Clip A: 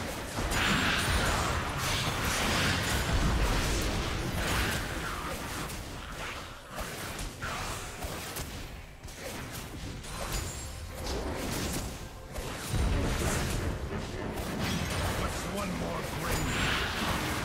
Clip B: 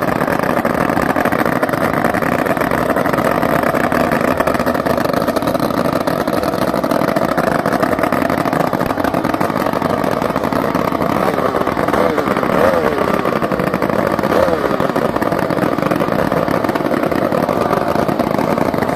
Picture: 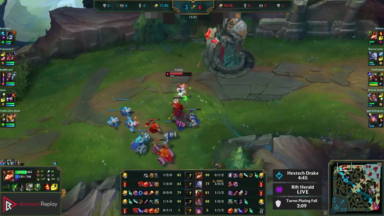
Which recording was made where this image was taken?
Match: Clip A